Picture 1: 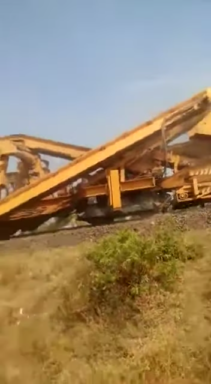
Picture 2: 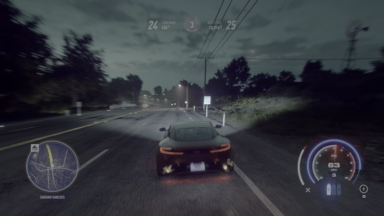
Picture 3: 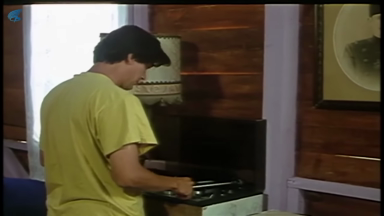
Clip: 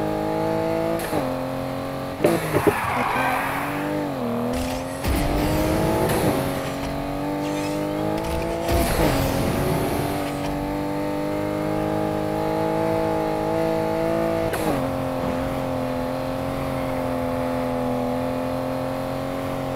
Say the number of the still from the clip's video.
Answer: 2